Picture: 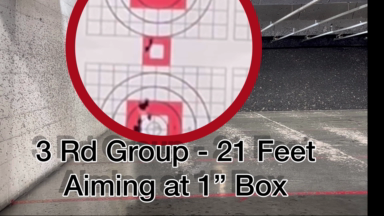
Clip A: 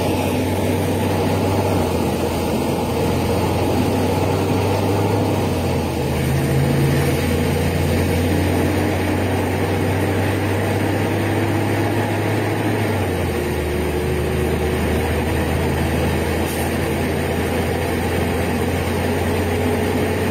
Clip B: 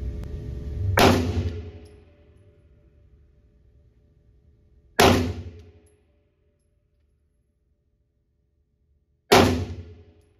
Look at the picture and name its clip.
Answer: B